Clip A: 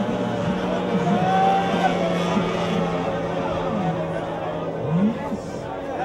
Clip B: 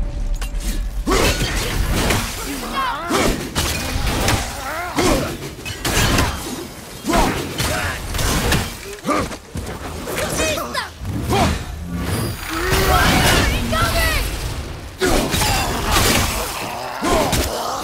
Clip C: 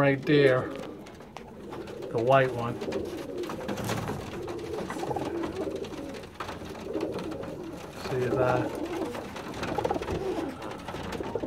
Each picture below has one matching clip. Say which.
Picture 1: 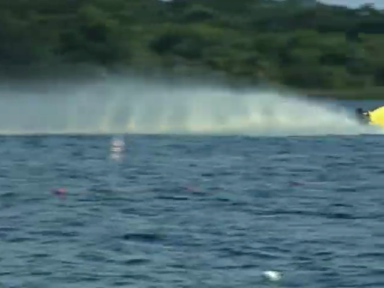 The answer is A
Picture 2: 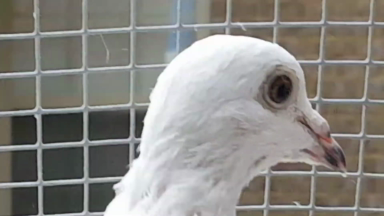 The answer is C